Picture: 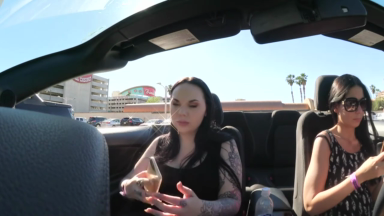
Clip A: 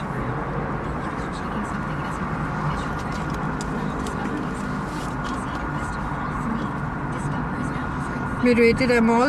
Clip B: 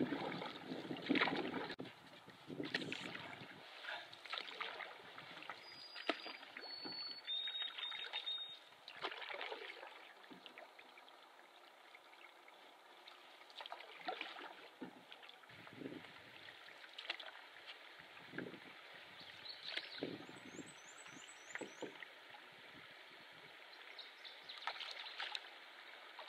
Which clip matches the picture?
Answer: A